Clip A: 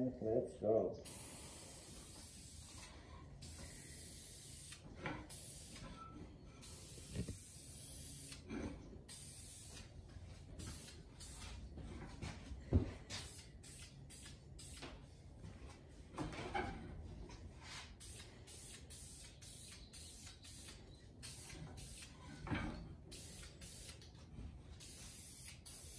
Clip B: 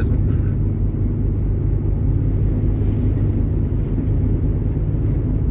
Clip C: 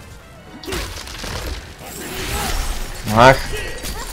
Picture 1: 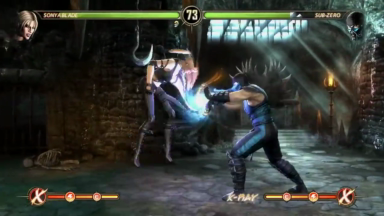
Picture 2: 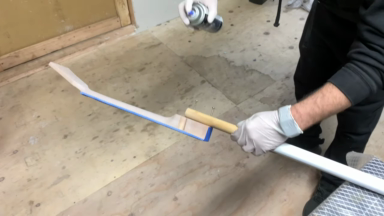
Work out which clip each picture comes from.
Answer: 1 C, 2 A